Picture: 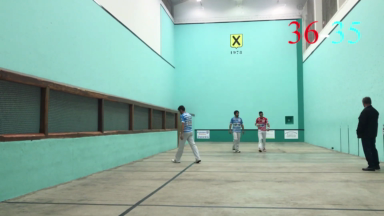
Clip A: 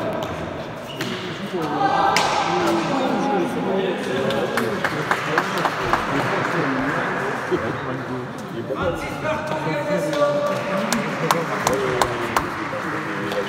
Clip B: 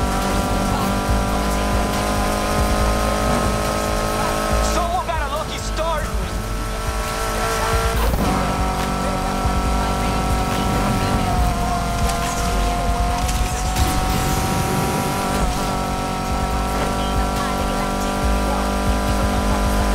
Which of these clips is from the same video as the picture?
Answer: A